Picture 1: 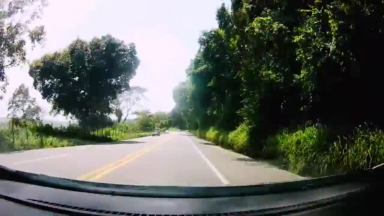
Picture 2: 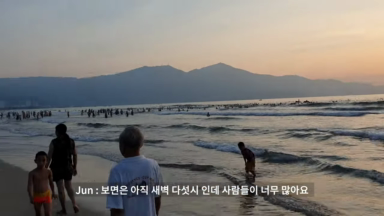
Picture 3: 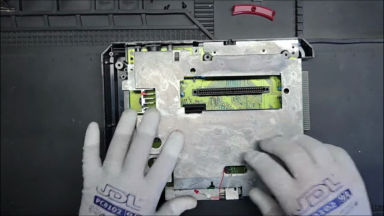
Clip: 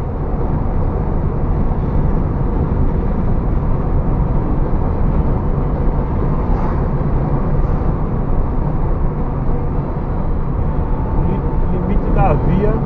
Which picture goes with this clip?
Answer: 1